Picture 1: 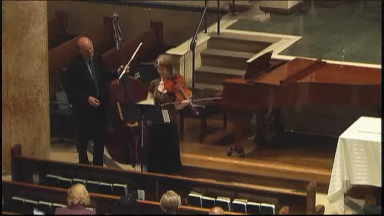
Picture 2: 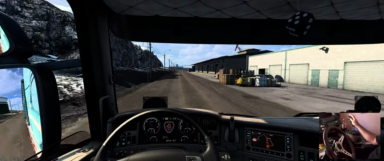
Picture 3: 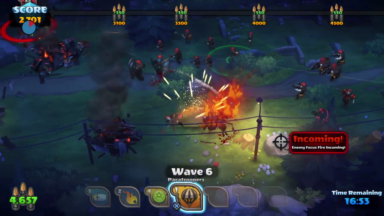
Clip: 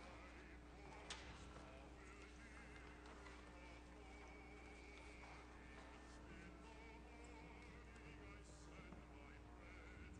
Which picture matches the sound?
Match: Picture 1